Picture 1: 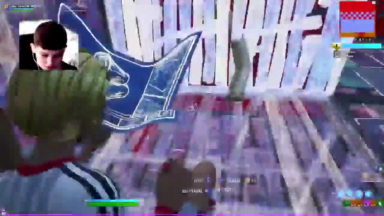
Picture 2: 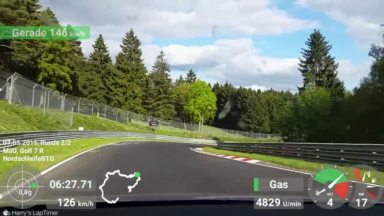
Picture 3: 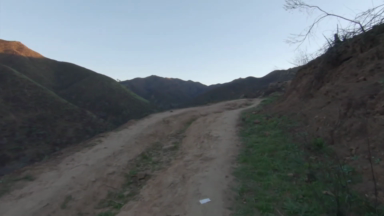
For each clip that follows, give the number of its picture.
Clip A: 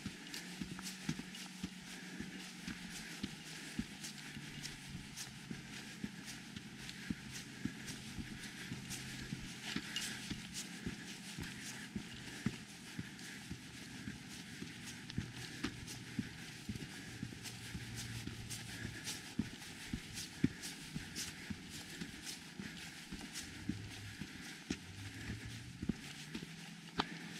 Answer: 3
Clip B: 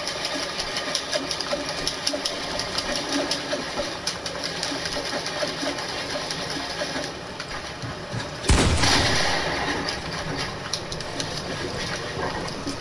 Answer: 1